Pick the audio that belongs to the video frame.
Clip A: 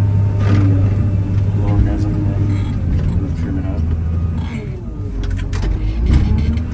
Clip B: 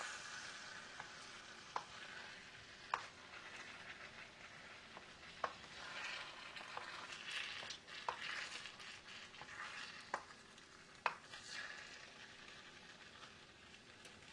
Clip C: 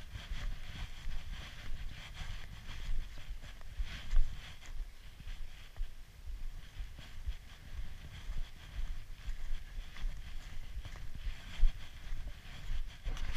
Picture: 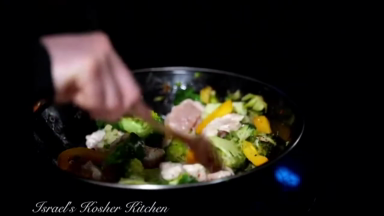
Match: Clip B